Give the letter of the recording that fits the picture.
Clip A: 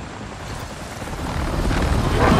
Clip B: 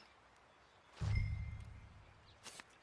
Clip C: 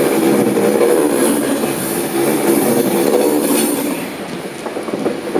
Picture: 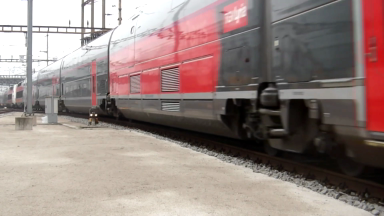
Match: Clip C